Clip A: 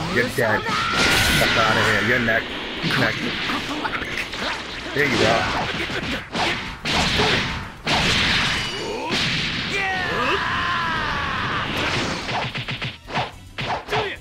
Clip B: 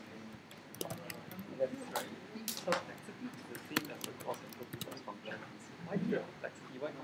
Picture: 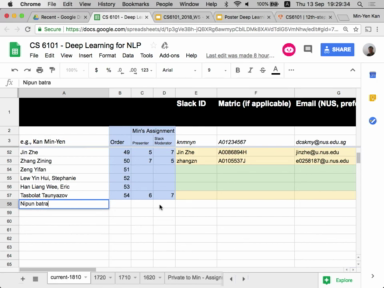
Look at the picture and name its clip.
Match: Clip B